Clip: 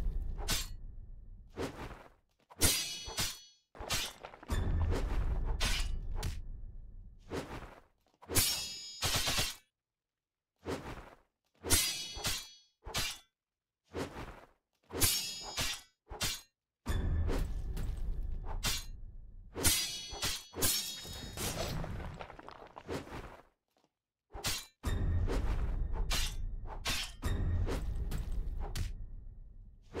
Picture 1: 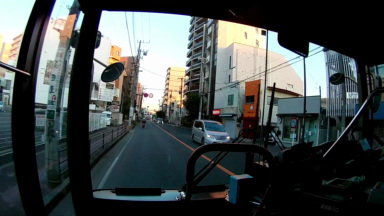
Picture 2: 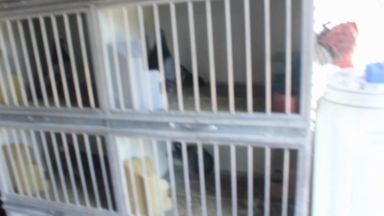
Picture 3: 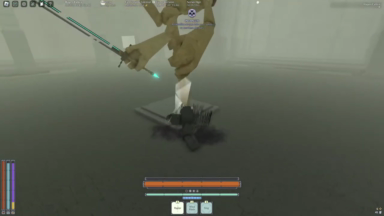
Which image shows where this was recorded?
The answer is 3